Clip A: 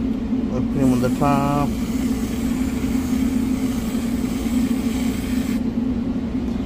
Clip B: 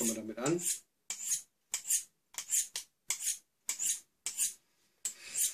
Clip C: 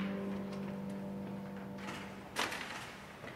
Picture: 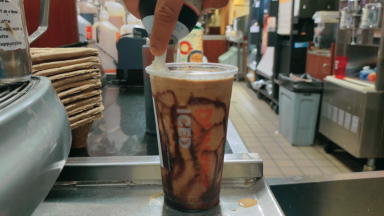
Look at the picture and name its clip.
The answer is A